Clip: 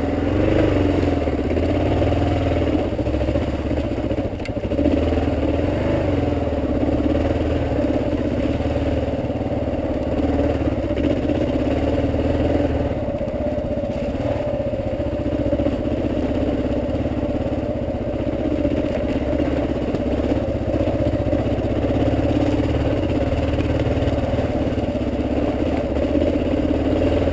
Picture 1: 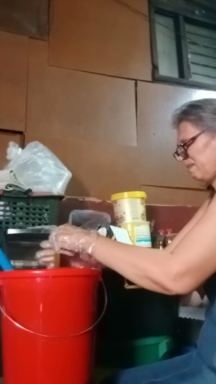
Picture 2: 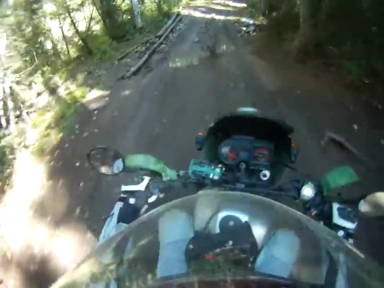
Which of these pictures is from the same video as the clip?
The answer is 2